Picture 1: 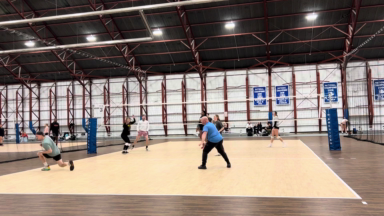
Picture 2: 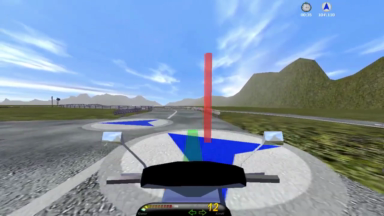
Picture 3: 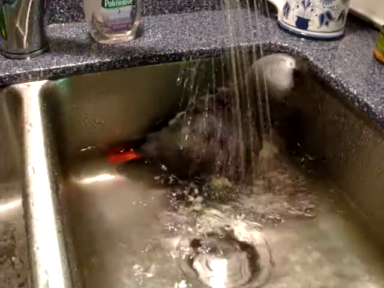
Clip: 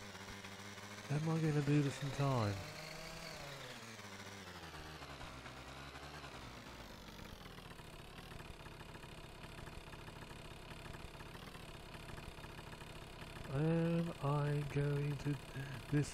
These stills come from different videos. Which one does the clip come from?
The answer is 2